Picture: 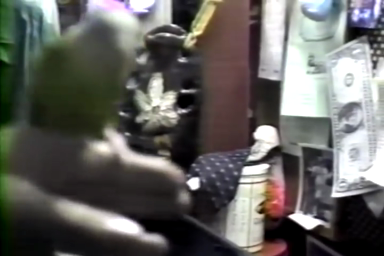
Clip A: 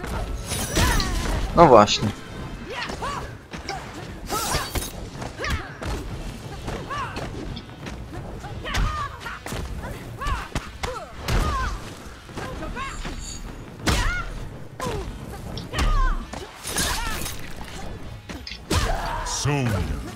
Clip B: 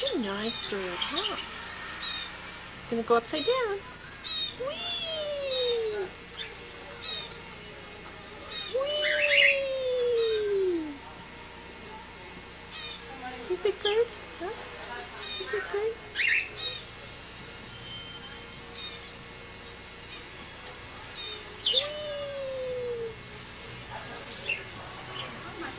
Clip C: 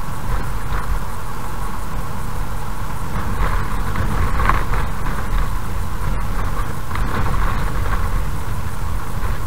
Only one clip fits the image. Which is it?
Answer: B